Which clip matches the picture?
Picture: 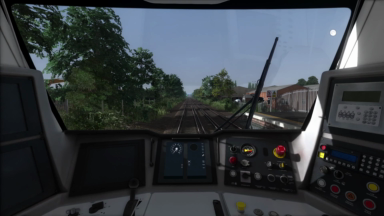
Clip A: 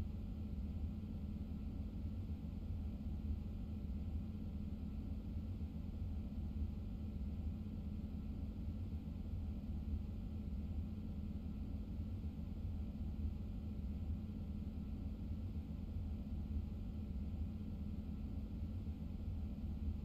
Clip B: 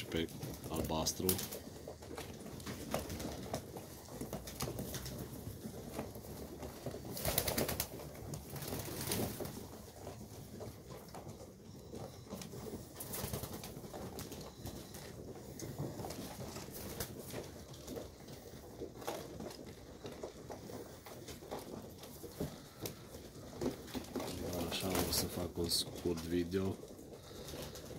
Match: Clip A